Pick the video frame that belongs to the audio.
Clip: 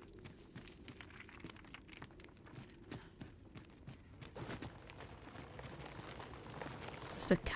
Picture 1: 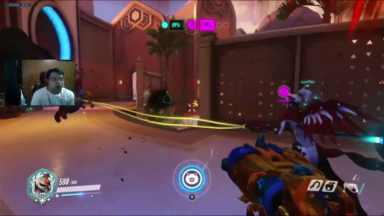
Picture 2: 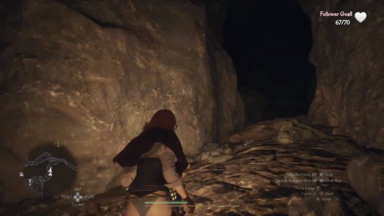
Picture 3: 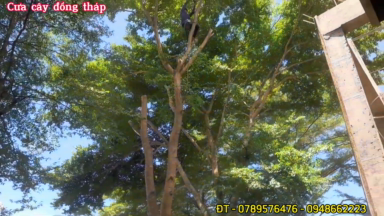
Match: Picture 2